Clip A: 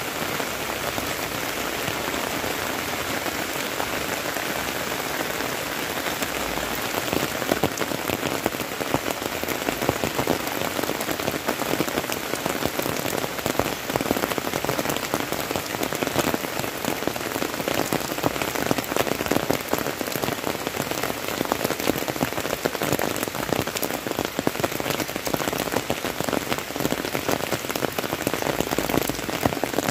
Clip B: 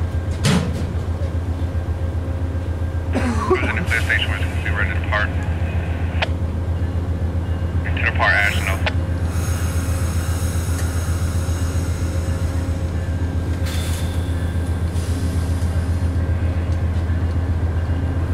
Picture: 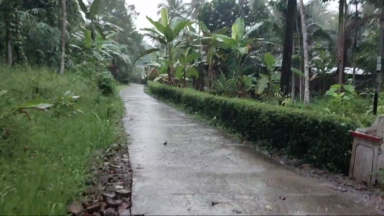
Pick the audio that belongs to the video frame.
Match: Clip A